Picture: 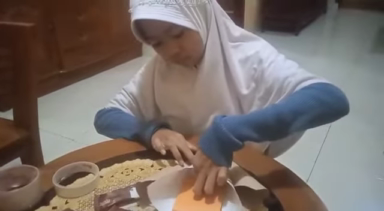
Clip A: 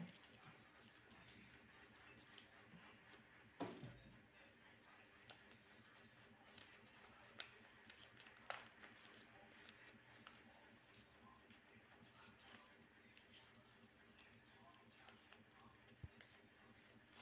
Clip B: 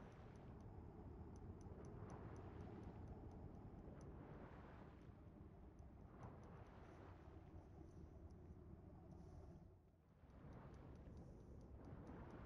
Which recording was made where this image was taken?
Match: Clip A